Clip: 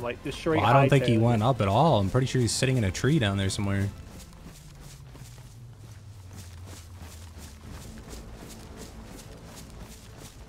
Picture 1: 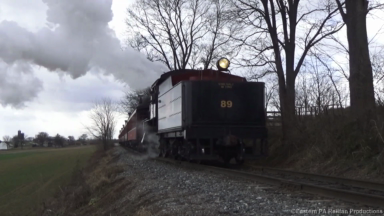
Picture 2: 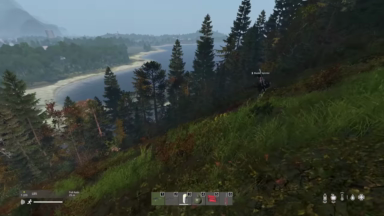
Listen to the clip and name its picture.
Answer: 2